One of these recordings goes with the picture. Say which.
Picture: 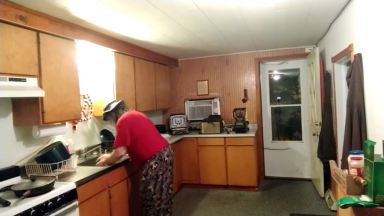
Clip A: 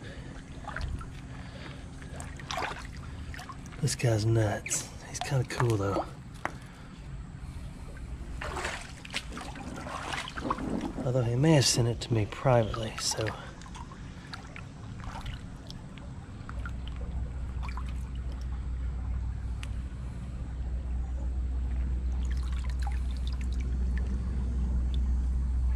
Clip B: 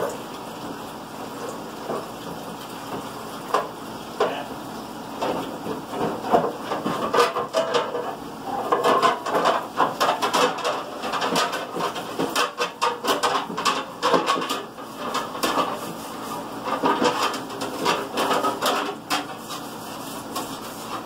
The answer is B